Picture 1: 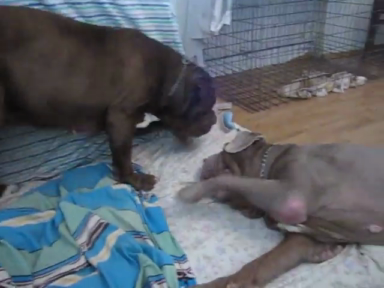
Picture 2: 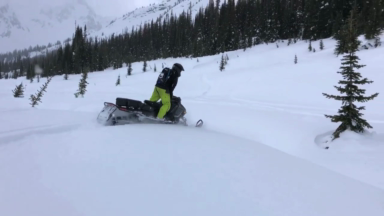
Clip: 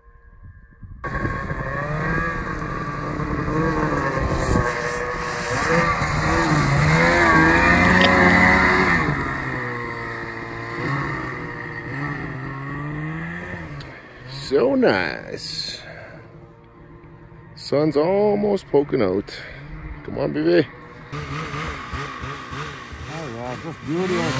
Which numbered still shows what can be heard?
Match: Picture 2